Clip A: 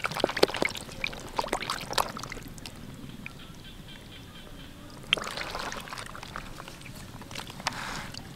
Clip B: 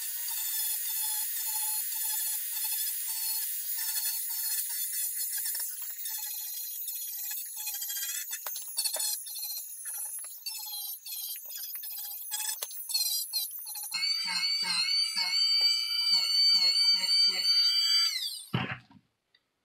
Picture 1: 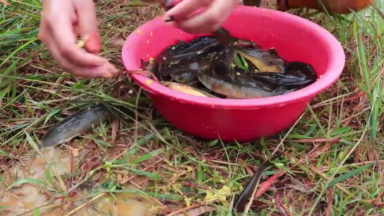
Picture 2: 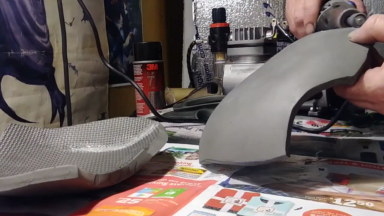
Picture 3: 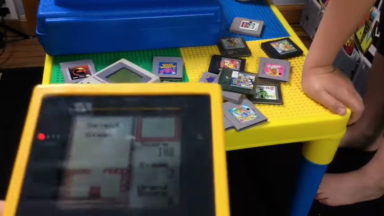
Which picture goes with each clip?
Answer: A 1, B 2